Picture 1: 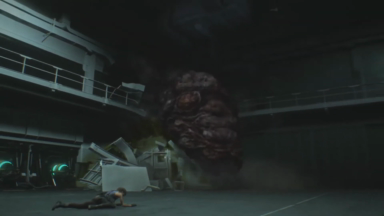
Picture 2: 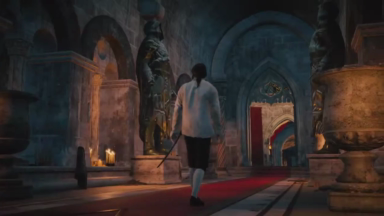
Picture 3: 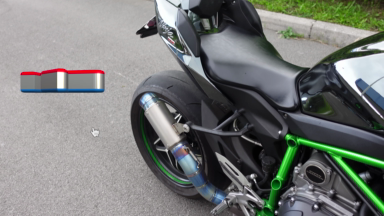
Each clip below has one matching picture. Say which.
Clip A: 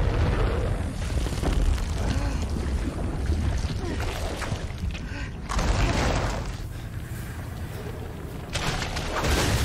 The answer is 1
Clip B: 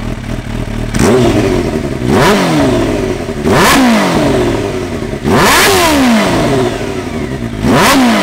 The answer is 3